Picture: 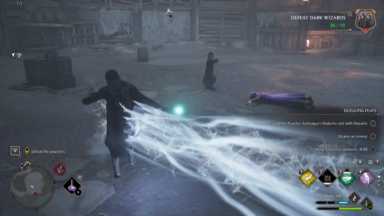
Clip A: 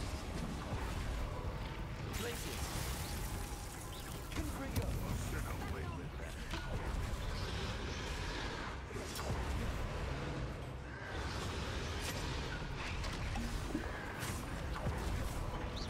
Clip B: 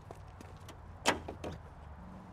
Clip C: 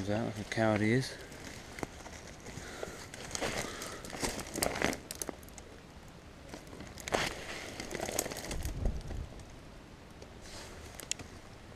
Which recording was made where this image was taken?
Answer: A